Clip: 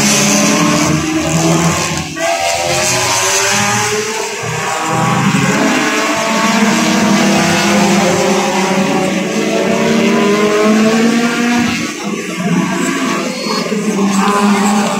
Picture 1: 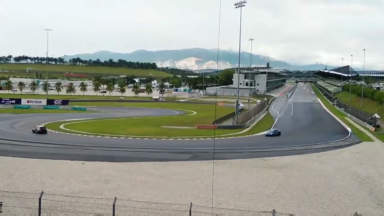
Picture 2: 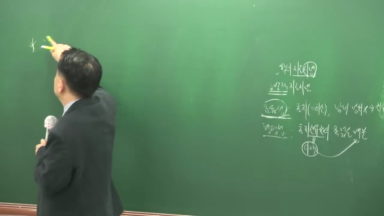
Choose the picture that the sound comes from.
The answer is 1